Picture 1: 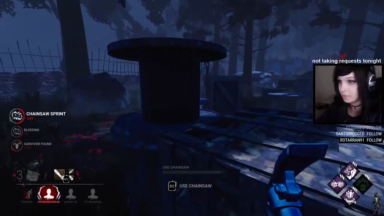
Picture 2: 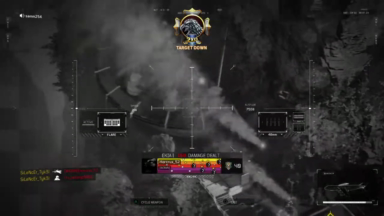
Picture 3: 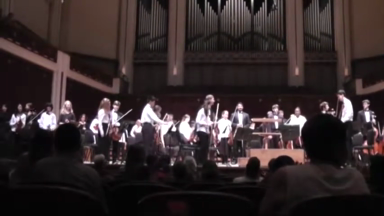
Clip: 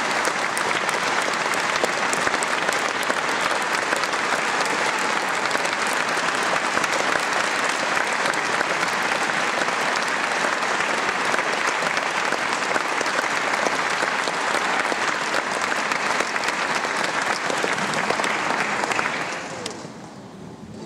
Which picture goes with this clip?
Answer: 3